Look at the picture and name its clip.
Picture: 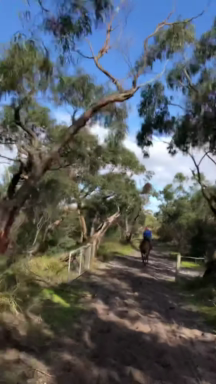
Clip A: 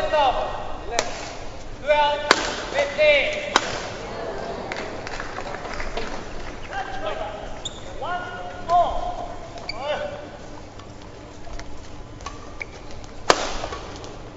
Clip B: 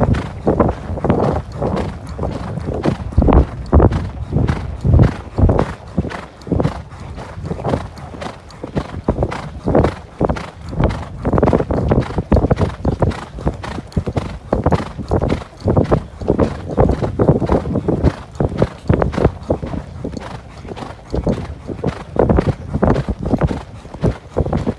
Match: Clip B